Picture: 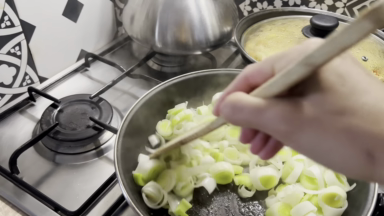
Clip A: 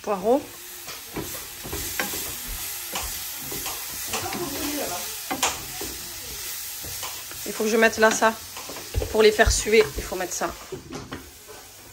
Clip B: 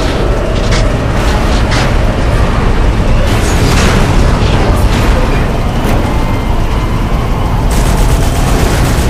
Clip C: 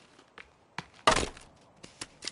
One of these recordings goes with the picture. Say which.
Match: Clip A